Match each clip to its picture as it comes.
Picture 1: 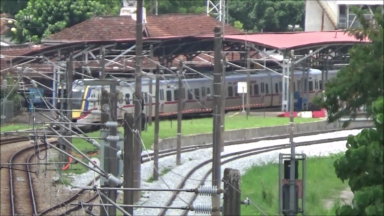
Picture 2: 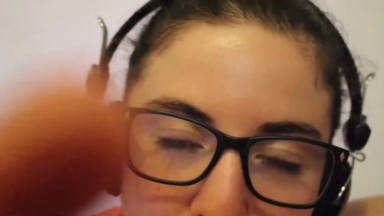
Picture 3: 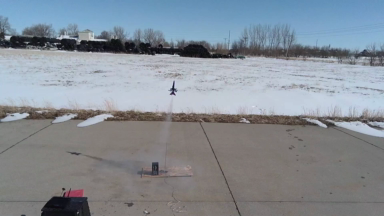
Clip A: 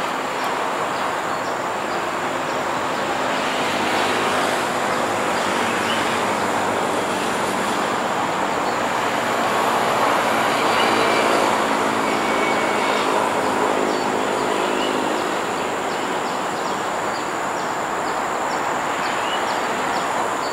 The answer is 1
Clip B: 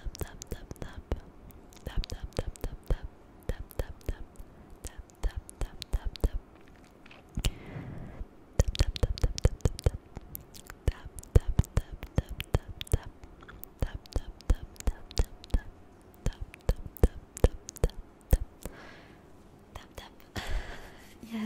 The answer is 2